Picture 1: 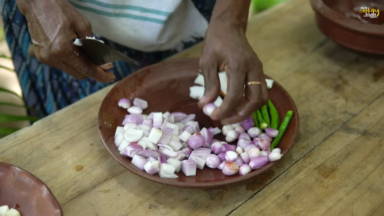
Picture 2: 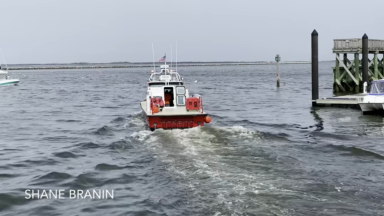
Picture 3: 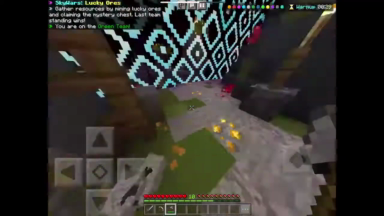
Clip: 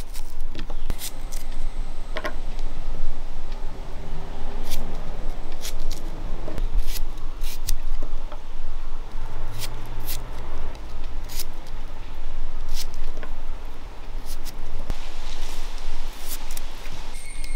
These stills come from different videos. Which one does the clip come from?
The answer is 1